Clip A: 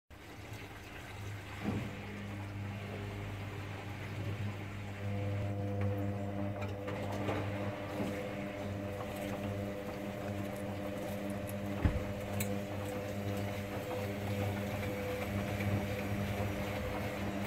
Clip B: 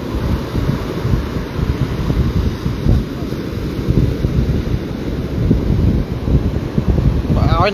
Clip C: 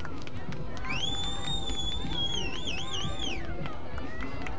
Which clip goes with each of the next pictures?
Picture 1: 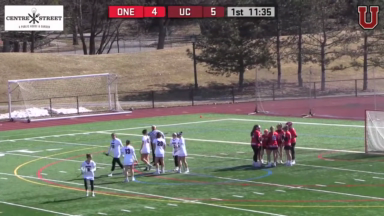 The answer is C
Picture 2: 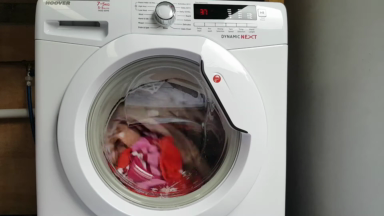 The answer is A